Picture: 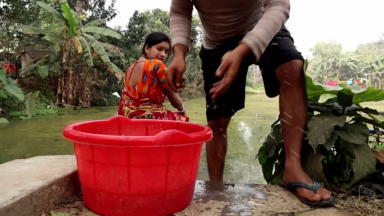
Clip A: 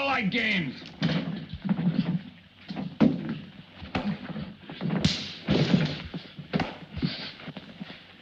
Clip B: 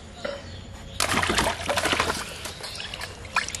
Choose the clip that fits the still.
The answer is B